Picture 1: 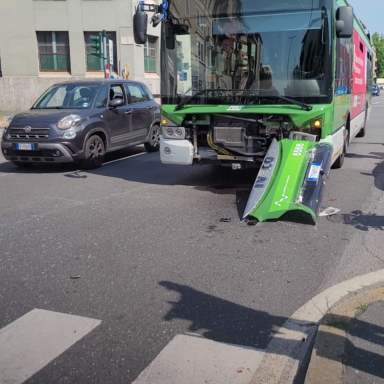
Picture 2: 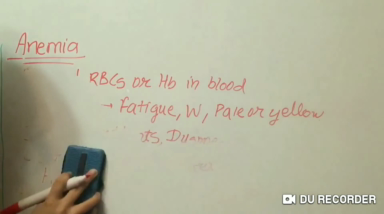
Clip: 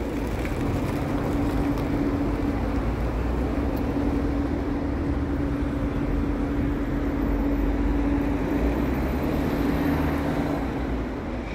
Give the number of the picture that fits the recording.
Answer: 1